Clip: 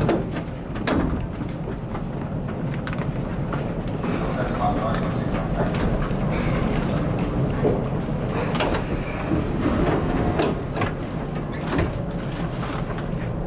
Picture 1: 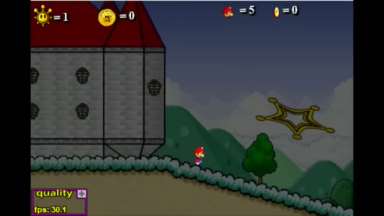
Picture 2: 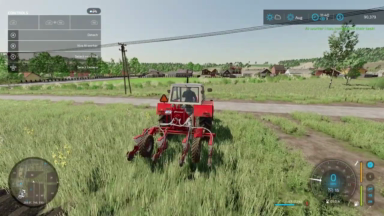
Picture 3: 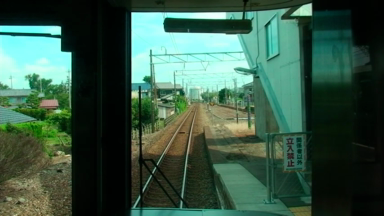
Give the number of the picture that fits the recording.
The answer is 3